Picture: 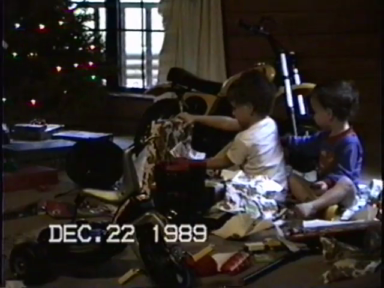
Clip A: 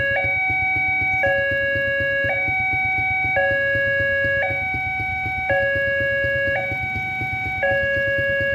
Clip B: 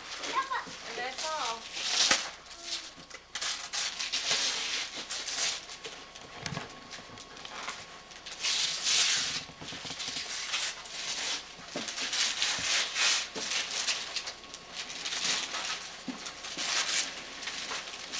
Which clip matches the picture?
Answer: B